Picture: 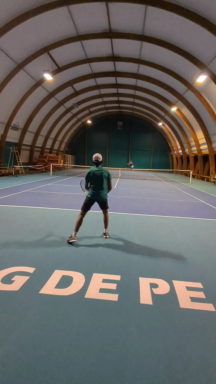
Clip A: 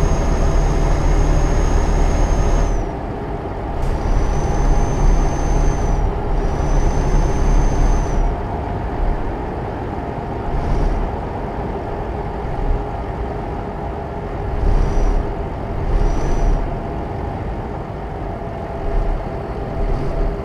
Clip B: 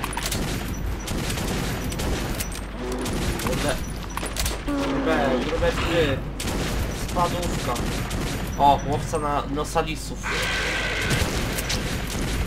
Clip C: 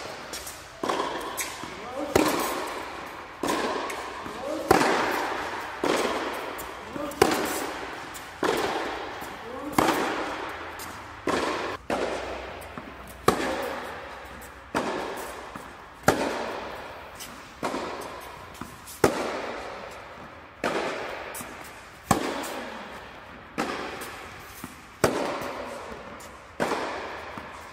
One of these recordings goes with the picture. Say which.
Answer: C